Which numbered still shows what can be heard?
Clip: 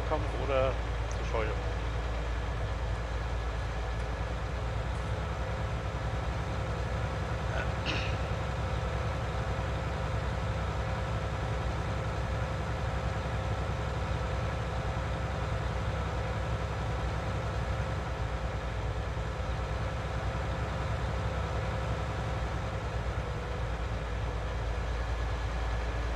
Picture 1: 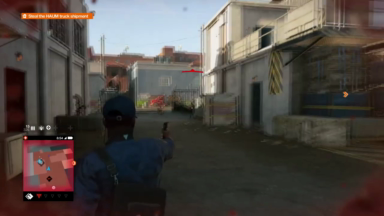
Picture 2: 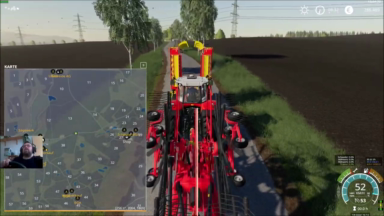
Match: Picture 2